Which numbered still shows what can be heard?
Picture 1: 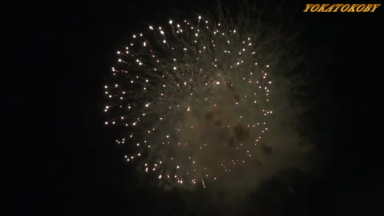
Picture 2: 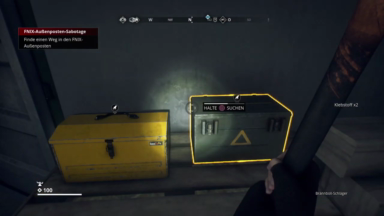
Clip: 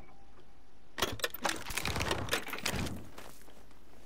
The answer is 2